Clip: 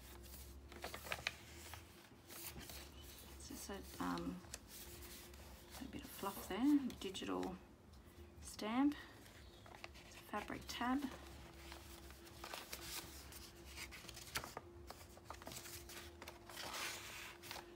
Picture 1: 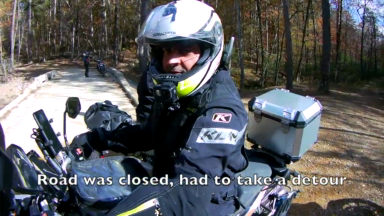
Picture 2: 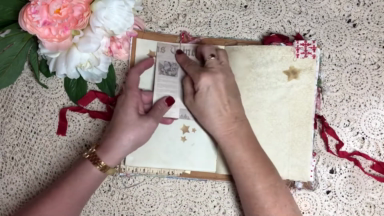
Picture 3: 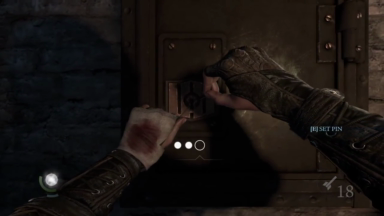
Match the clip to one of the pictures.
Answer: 2